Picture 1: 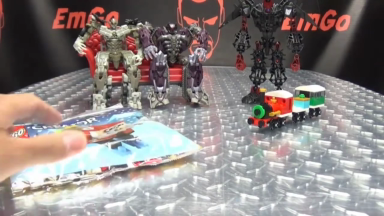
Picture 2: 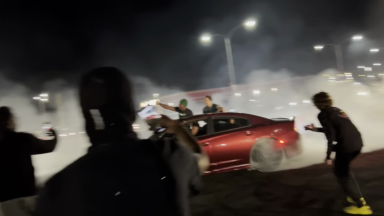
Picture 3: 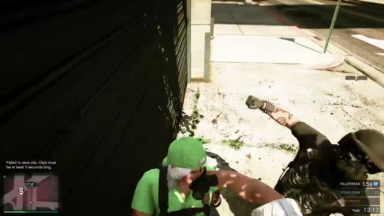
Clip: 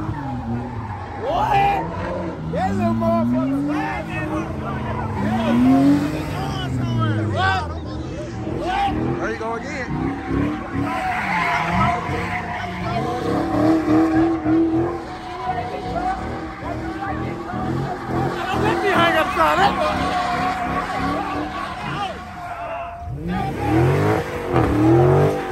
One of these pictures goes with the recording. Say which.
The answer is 2